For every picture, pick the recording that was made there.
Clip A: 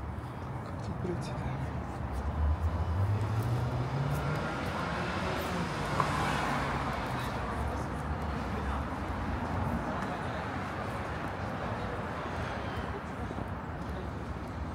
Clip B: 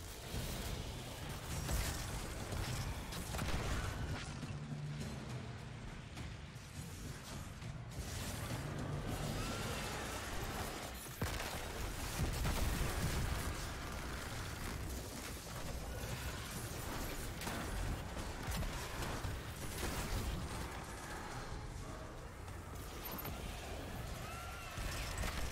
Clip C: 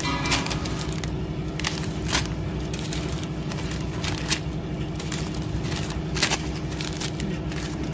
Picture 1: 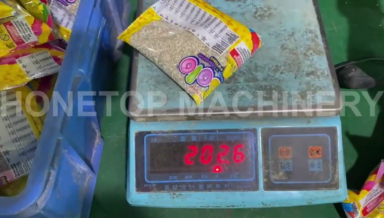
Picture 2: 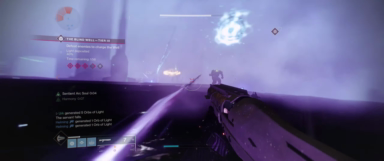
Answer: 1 C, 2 B